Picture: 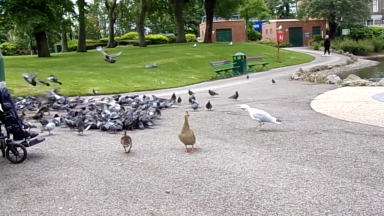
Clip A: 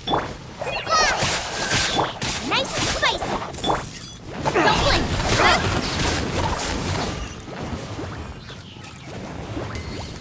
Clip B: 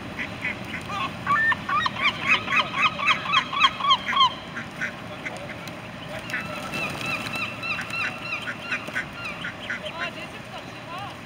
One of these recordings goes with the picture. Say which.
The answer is B